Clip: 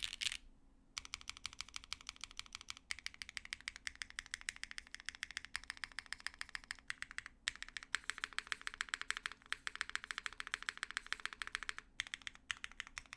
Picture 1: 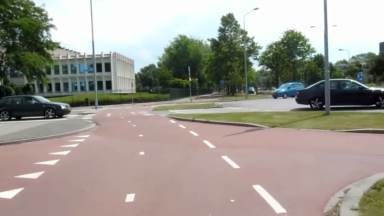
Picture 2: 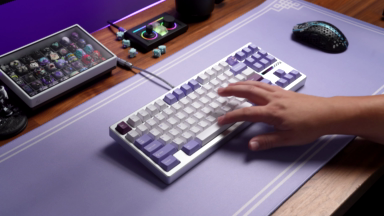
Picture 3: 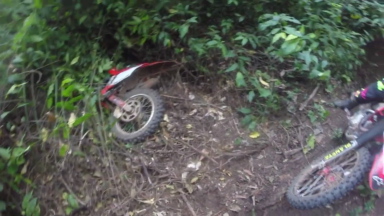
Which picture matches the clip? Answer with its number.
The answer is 2